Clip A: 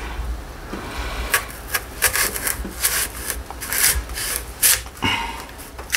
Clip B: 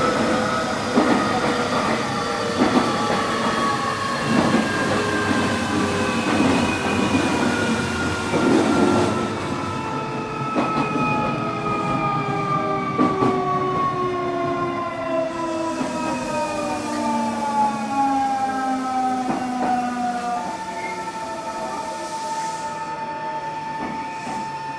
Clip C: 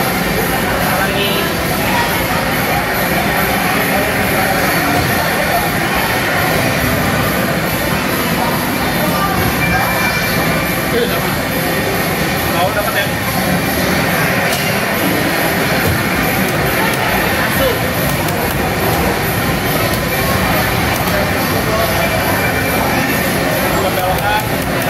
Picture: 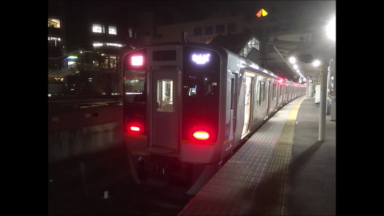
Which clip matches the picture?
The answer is B